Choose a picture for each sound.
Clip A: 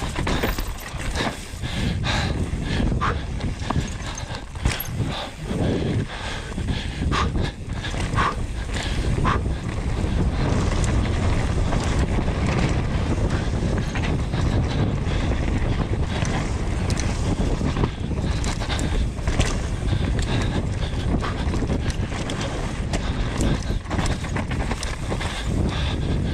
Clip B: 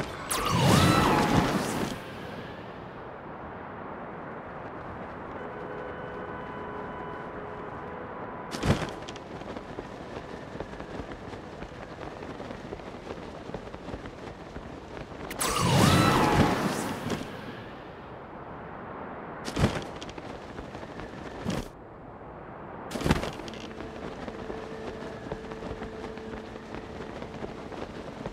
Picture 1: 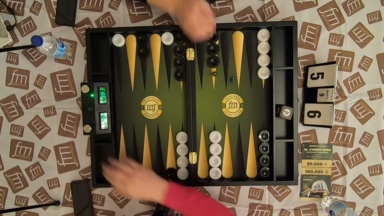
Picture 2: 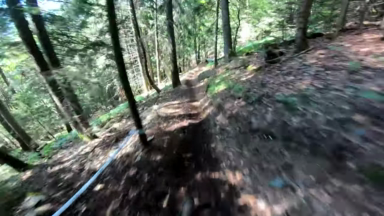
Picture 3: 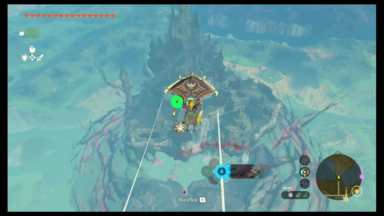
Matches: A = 2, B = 3